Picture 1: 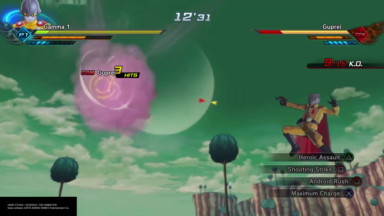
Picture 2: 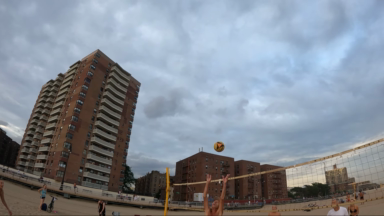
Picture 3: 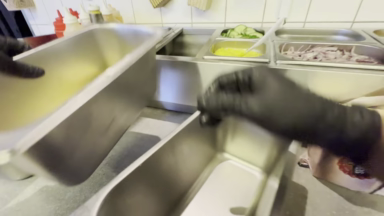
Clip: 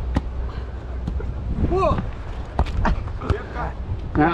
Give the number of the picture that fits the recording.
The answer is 2